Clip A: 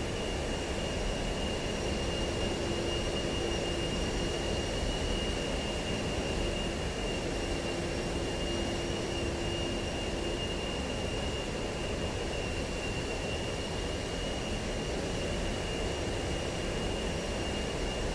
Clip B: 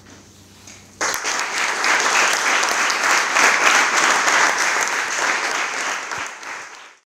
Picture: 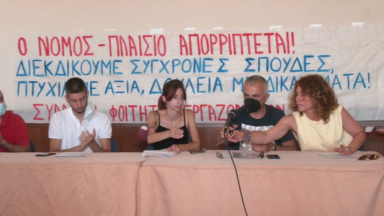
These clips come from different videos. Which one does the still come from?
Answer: B